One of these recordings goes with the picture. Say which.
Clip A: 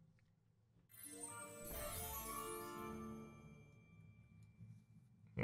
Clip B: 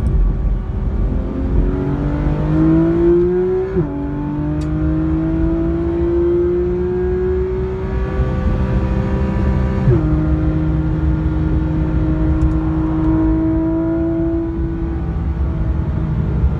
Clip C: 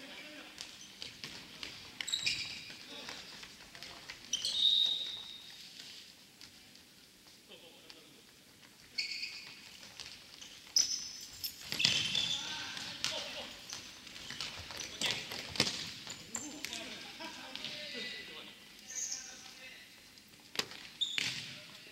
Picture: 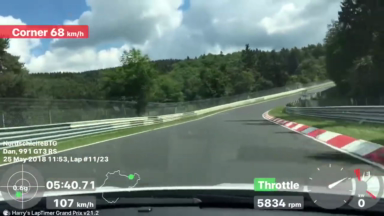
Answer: B